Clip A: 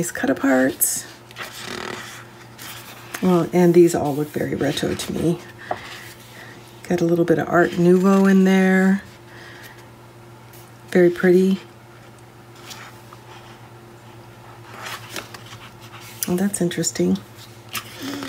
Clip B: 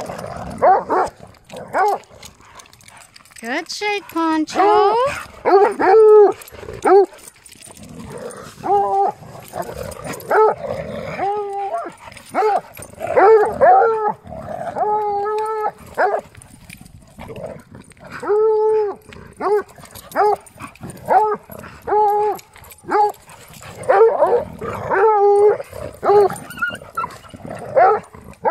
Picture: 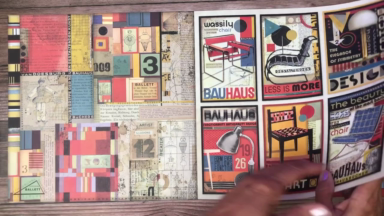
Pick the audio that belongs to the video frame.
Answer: A